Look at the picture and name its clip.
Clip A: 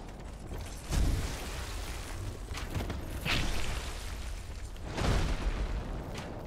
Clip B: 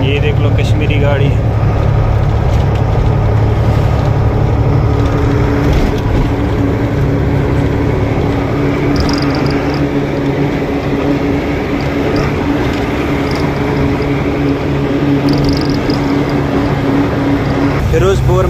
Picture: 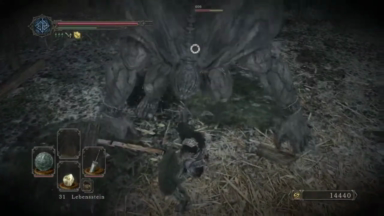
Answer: A